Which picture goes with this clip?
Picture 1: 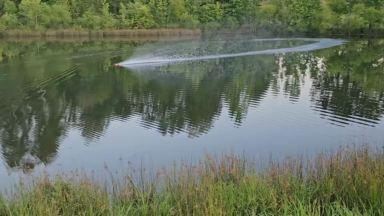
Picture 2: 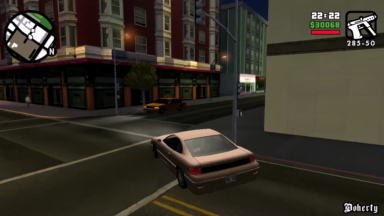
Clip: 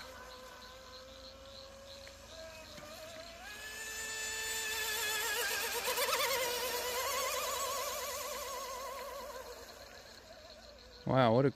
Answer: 1